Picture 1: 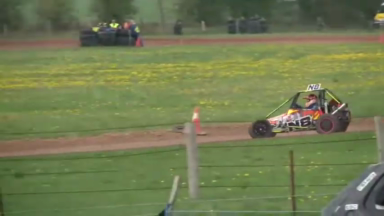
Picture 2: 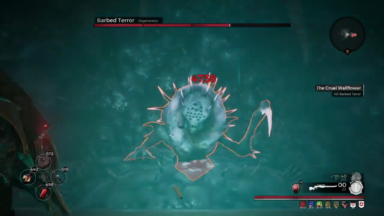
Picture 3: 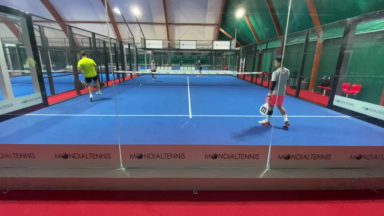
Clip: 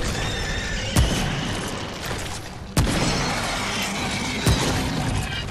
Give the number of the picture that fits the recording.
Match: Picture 2